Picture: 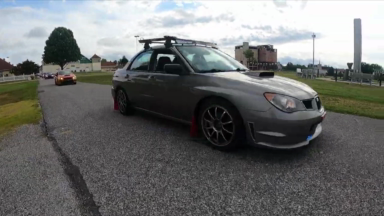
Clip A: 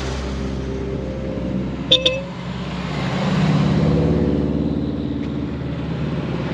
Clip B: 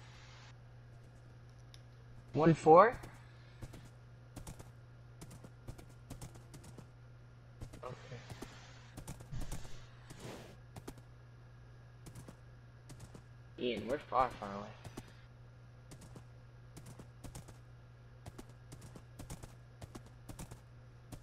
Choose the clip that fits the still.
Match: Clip A